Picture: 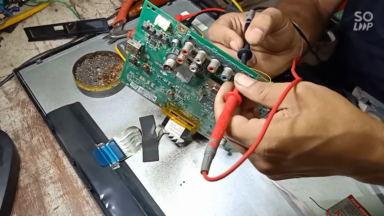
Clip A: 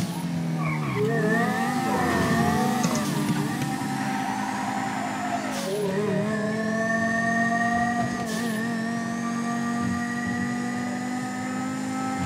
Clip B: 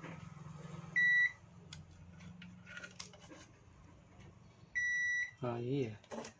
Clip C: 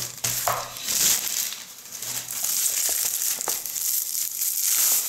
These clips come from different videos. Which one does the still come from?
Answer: B